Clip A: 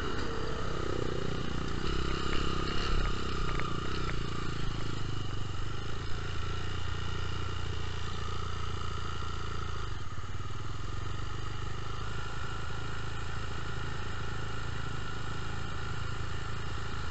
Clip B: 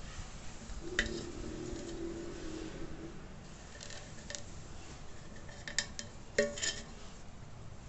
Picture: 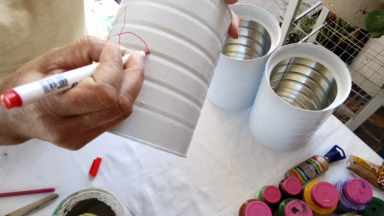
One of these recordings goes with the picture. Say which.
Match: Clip B